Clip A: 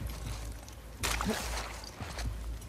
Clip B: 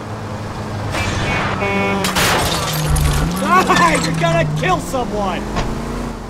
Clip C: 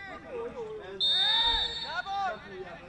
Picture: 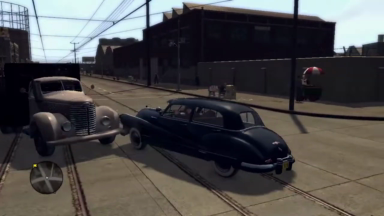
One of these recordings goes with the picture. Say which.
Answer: B